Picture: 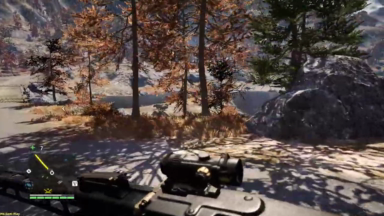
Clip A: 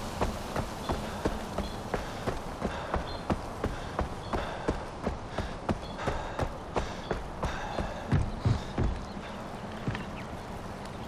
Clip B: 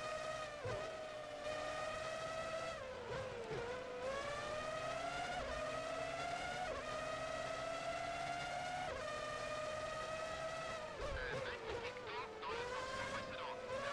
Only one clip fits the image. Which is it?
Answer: A